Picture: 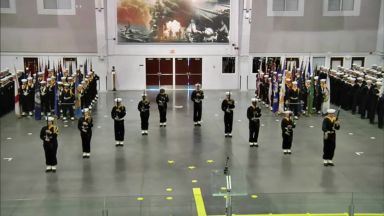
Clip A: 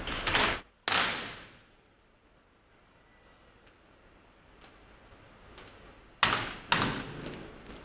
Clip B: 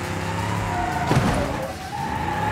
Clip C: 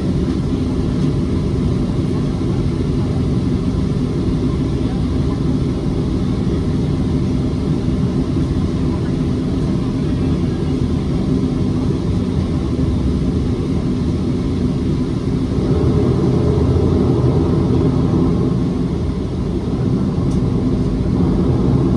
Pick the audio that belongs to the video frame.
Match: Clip A